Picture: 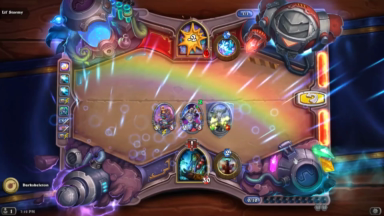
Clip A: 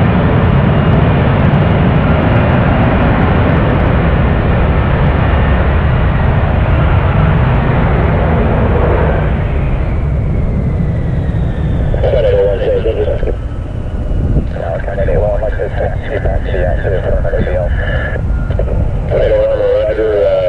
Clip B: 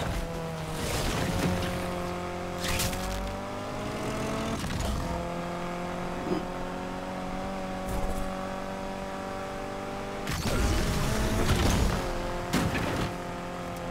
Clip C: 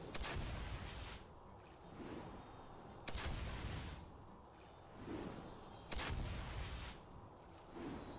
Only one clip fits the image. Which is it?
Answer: C